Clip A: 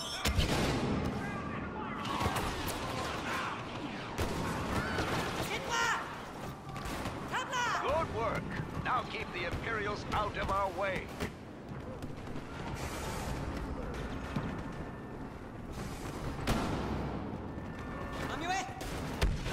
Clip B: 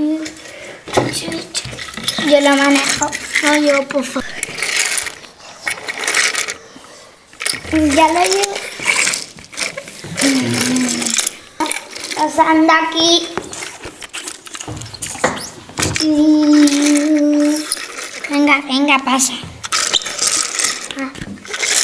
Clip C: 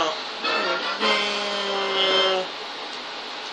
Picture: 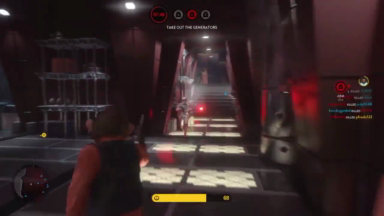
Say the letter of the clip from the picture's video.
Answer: A